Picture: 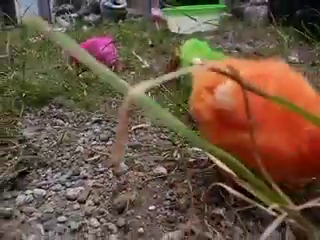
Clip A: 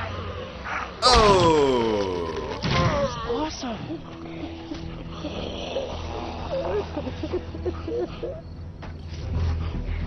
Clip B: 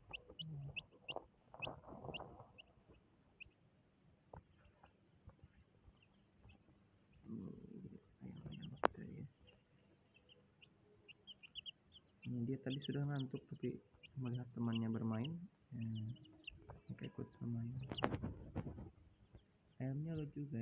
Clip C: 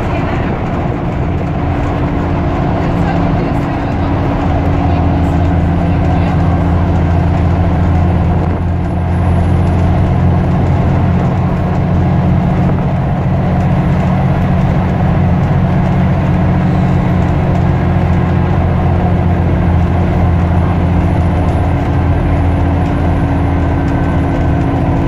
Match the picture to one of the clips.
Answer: B